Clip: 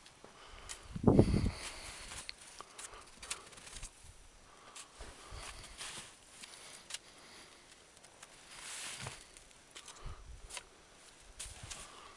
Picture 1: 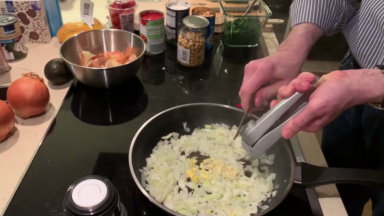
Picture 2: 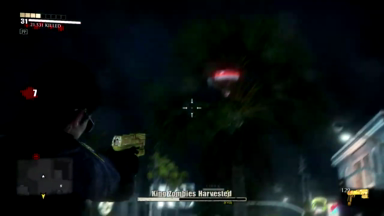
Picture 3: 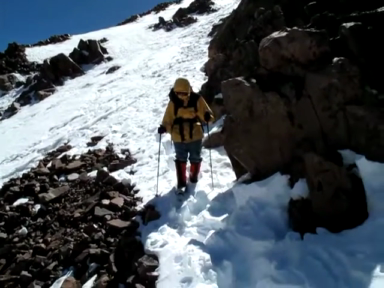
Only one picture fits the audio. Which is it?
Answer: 3